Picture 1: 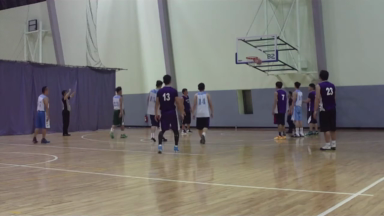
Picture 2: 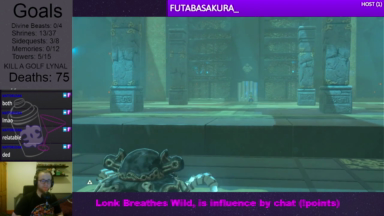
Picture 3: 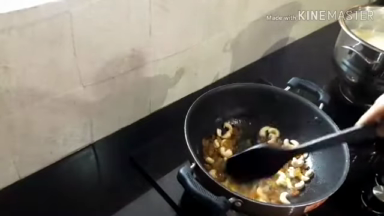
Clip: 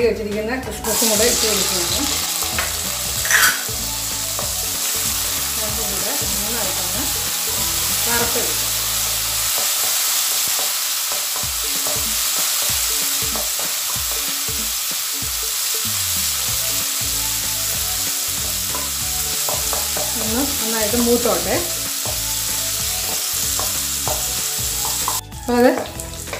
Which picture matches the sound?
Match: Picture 3